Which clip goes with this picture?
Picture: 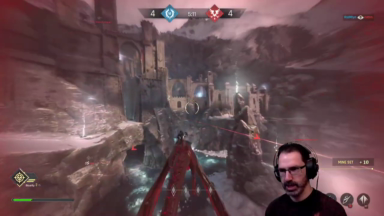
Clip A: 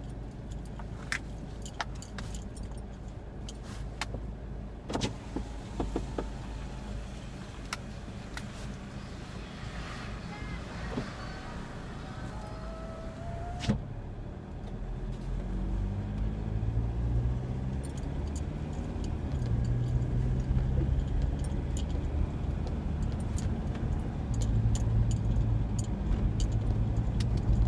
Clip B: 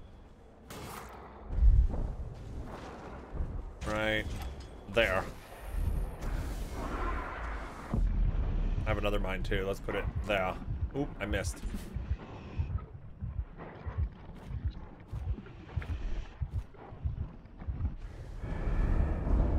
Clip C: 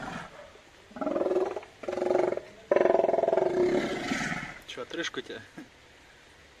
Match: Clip B